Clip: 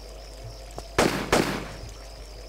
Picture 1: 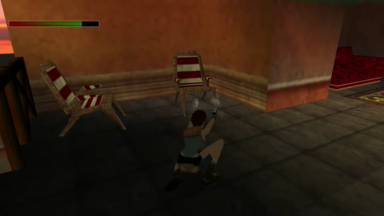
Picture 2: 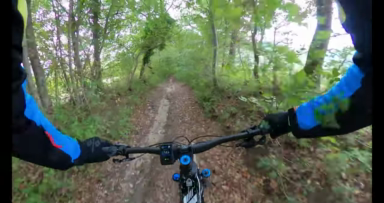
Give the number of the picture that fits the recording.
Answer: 1